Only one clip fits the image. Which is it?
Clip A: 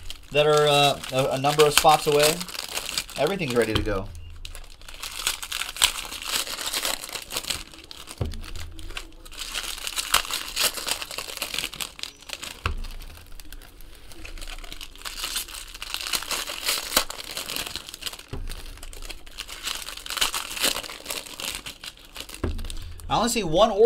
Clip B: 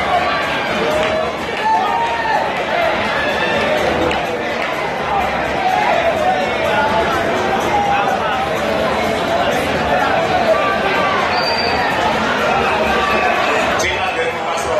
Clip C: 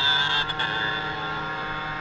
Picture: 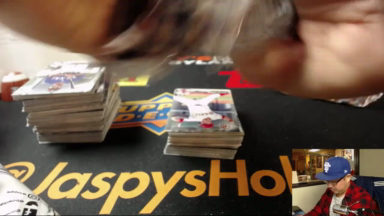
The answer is A